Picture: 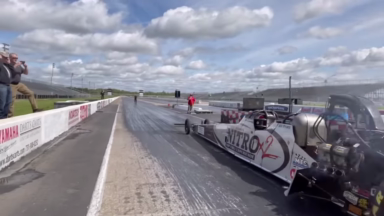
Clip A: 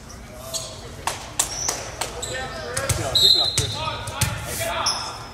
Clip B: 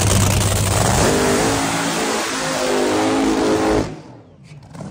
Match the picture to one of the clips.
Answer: B